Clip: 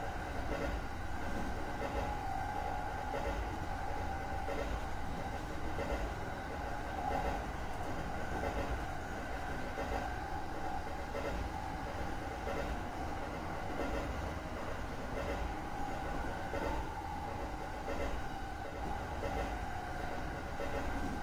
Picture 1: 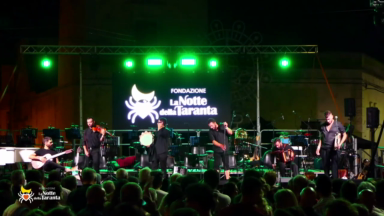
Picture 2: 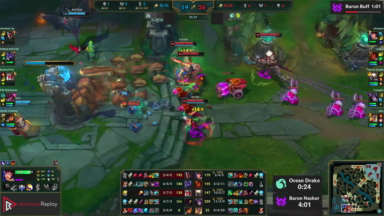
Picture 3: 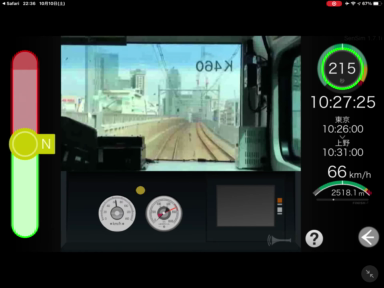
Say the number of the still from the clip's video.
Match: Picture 3